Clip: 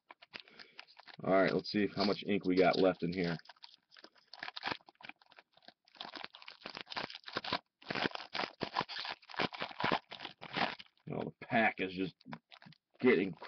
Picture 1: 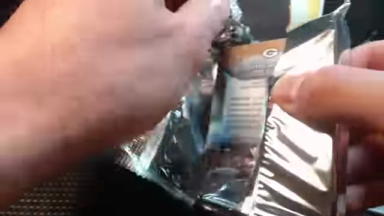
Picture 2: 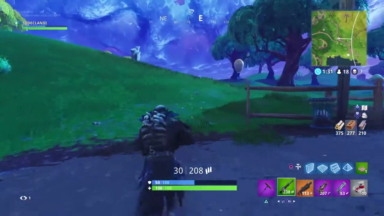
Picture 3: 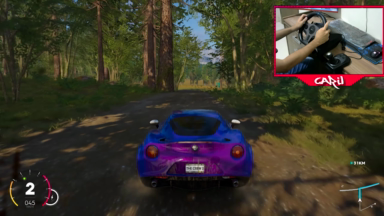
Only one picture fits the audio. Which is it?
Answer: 1